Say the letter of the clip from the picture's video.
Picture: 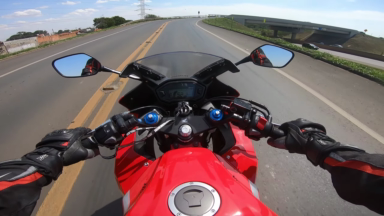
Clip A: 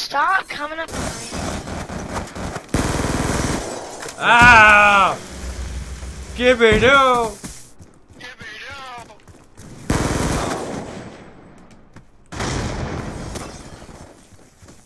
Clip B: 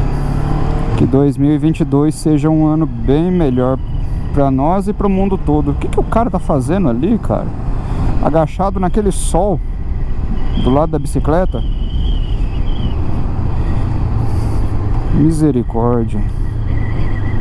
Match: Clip B